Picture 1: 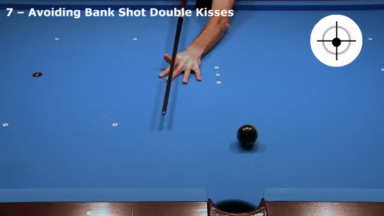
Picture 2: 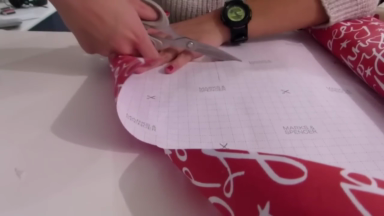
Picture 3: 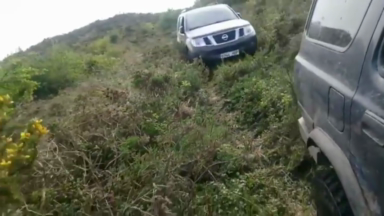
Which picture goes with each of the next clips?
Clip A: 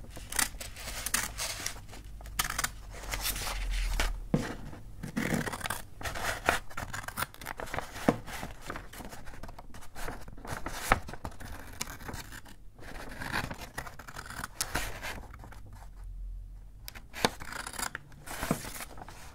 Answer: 2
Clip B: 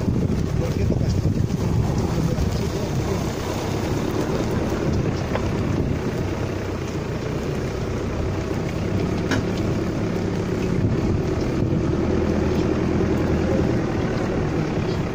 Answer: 3